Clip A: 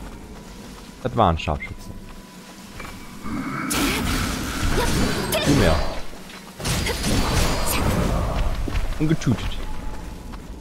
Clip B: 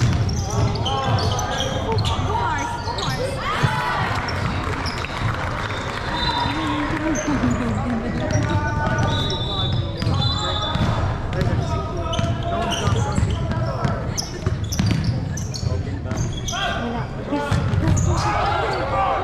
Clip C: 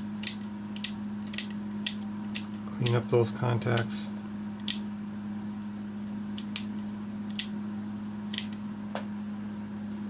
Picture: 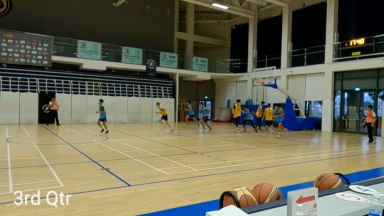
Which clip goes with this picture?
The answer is B